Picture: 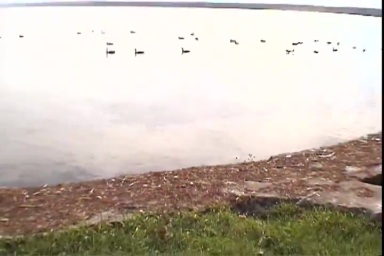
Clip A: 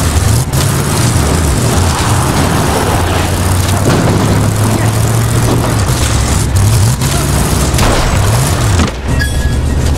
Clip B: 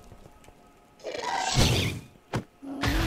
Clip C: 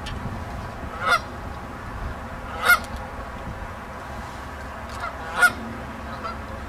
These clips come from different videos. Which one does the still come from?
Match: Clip C